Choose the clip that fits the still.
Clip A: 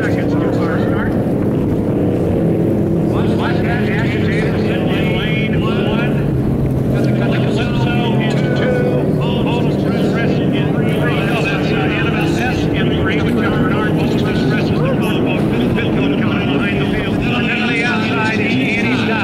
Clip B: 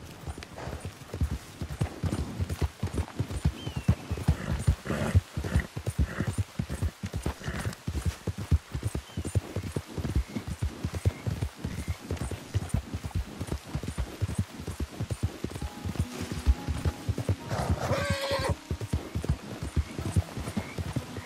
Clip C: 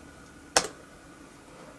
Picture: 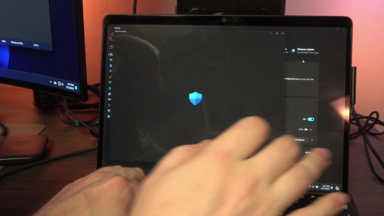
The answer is C